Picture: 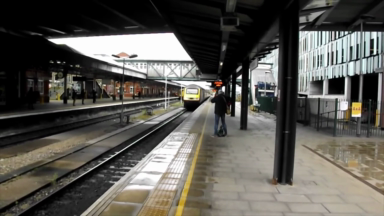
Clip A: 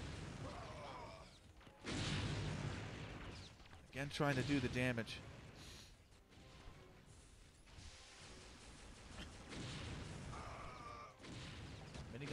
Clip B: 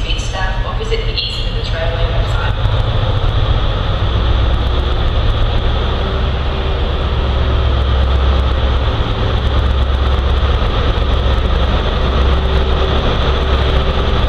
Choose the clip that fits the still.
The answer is B